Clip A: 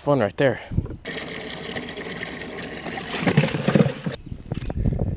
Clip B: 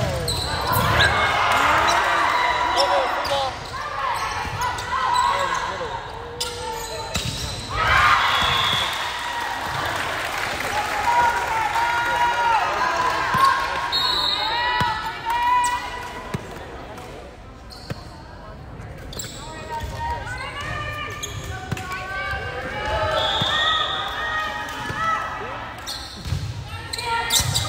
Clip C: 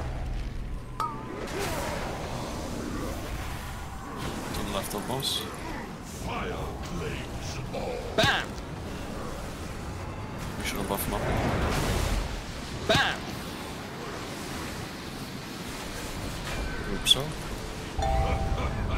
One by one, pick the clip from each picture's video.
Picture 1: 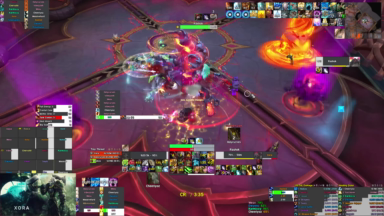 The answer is C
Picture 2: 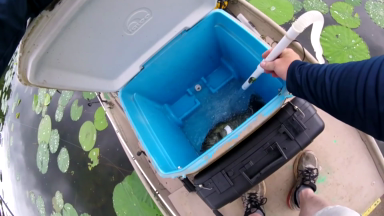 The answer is A